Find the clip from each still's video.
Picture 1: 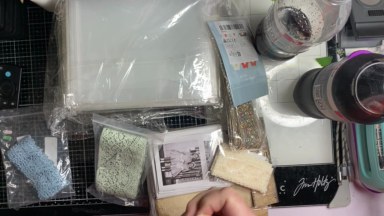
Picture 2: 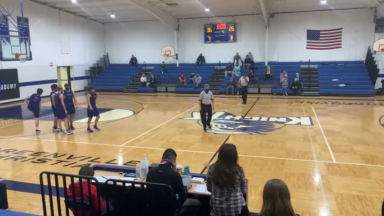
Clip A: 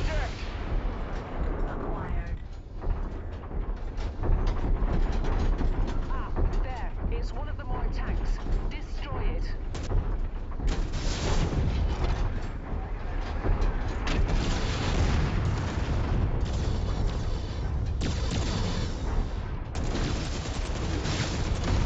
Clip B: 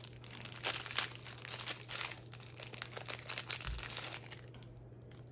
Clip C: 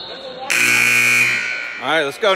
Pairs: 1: B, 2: C